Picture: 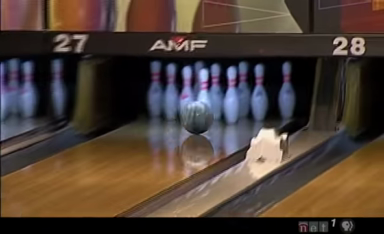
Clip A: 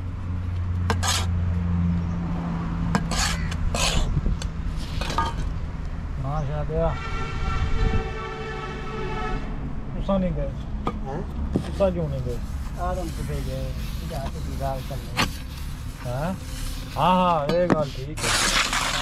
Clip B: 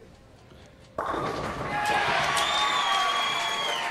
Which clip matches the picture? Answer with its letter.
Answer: B